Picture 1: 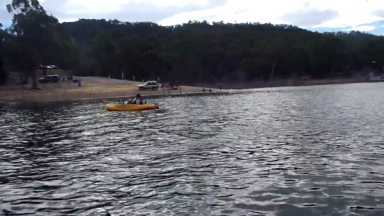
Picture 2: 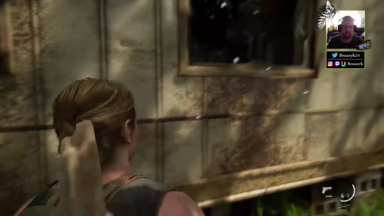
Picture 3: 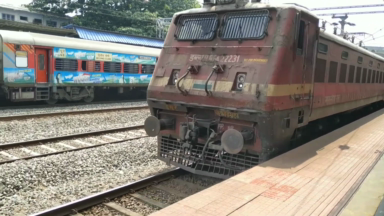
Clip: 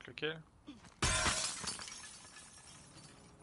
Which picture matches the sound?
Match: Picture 2